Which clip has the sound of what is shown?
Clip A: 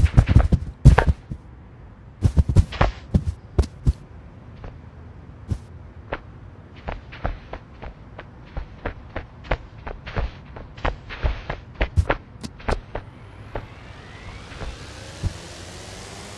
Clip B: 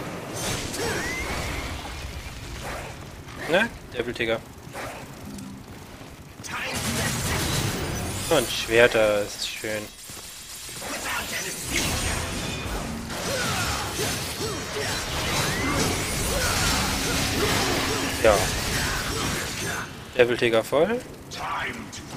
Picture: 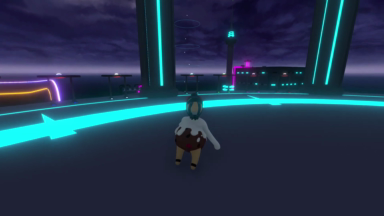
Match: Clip A